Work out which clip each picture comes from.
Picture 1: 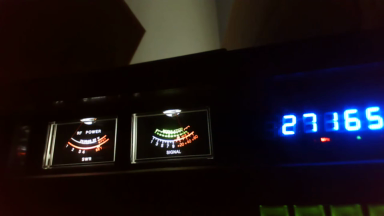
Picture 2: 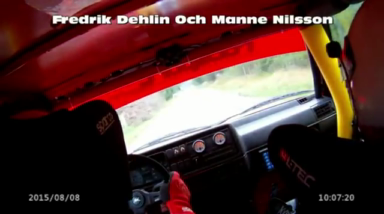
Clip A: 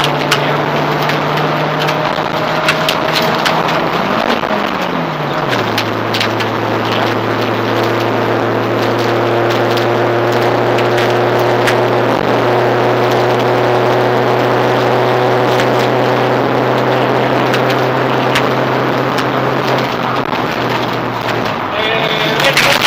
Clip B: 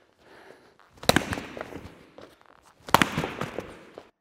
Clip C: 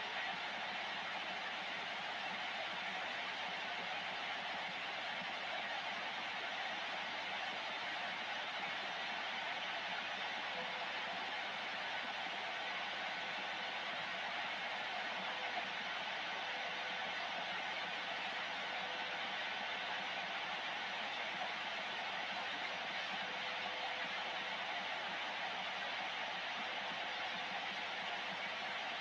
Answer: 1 C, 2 A